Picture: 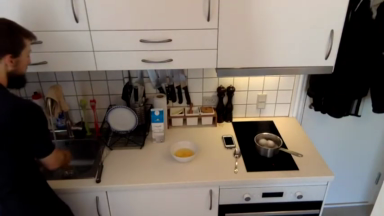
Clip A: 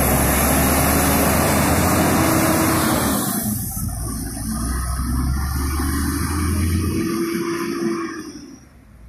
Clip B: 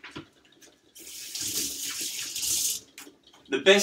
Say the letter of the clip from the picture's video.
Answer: B